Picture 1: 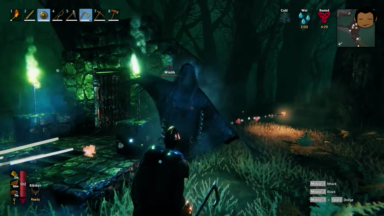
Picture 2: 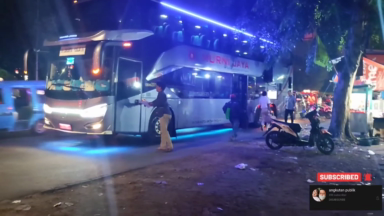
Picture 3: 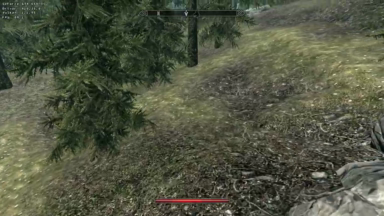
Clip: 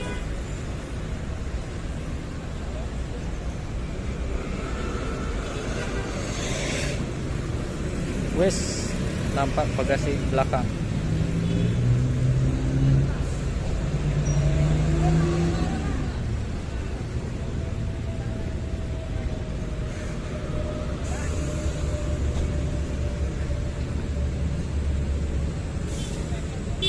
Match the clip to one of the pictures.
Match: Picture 2